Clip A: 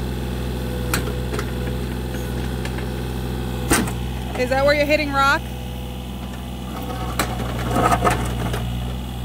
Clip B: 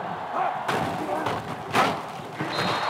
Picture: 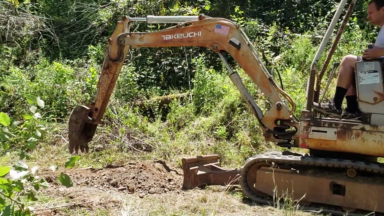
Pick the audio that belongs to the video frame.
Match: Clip A